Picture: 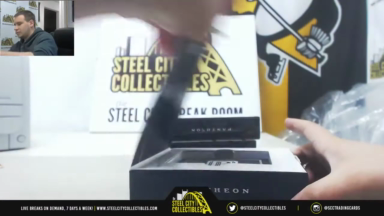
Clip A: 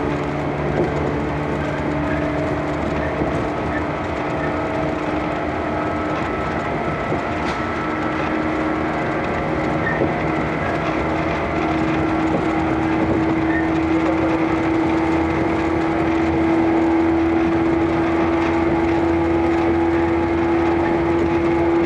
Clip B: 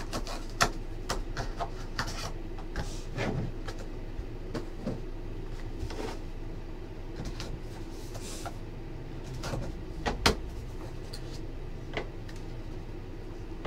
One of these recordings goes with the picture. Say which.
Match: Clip B